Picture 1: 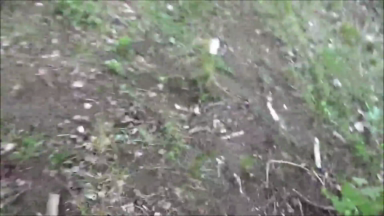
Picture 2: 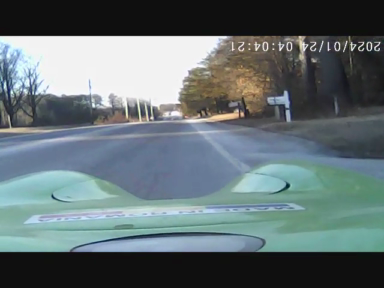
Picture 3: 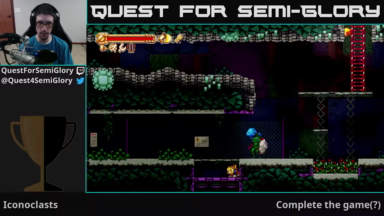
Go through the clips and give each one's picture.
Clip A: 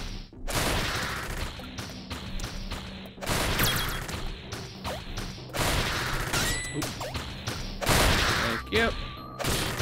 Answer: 3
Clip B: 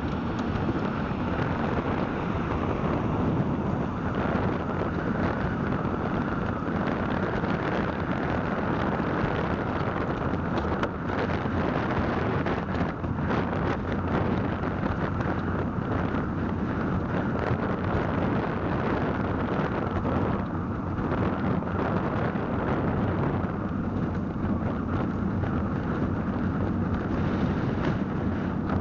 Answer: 2